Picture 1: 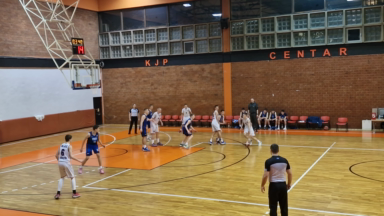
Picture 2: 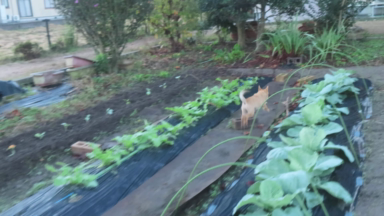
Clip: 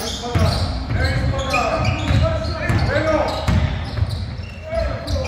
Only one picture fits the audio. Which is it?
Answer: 1